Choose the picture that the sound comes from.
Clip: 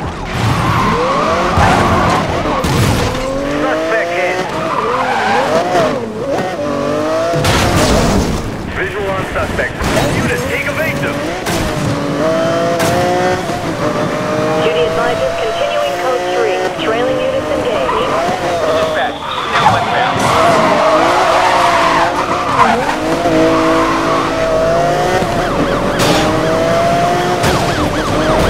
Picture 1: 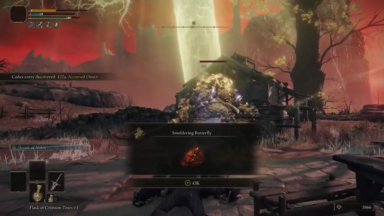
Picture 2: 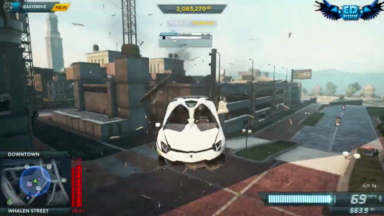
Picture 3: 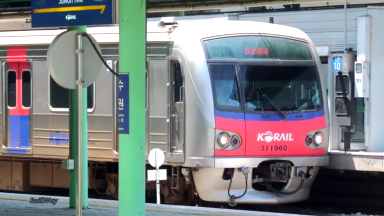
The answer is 2